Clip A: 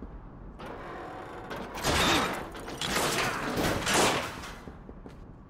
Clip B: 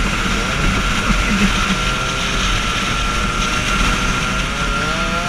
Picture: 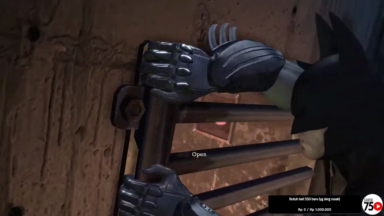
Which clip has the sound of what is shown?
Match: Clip A